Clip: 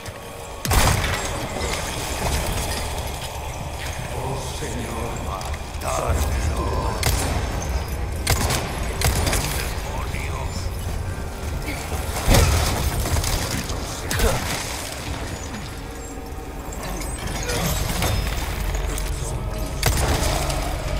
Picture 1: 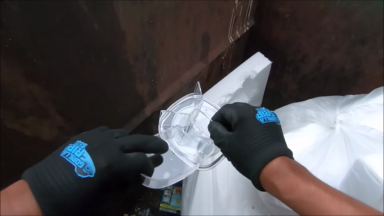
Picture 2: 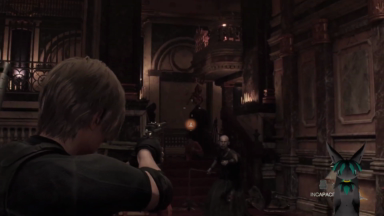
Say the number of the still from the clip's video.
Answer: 2